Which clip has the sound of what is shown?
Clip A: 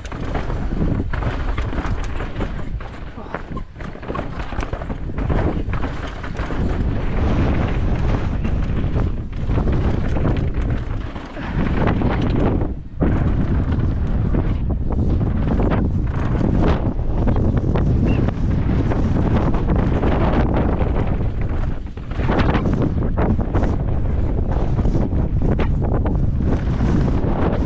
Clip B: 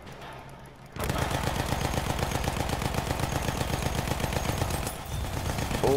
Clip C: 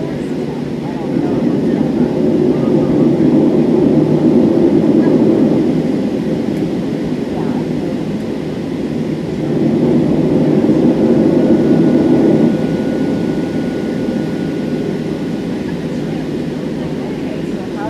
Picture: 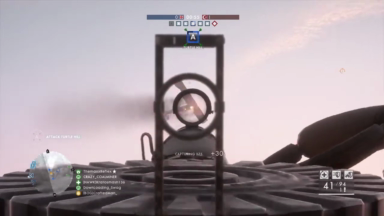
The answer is B